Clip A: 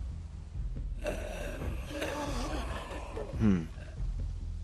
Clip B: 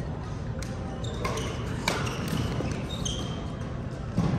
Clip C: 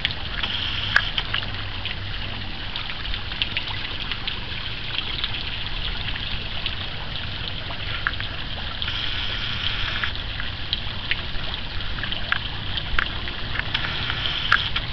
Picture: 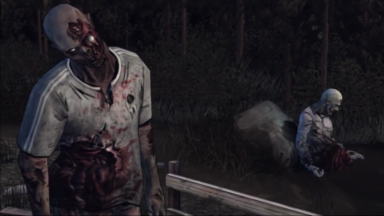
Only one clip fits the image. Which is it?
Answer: A